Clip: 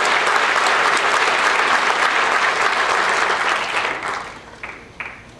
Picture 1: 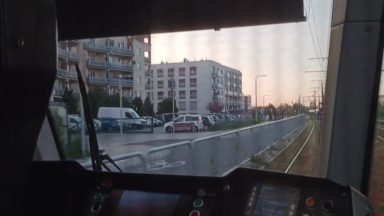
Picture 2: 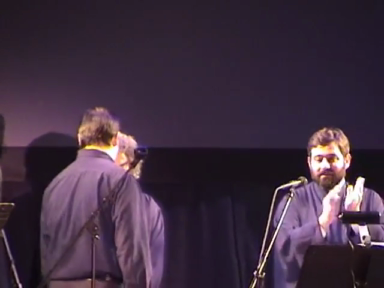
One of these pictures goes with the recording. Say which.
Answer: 2